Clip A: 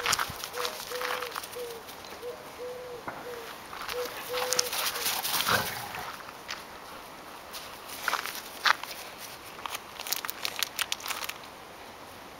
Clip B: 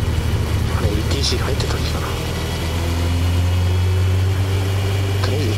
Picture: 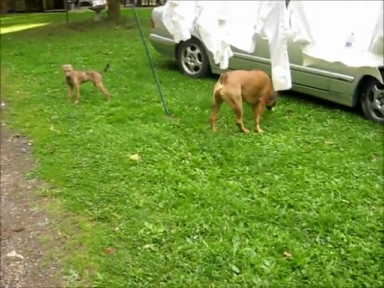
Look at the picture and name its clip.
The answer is A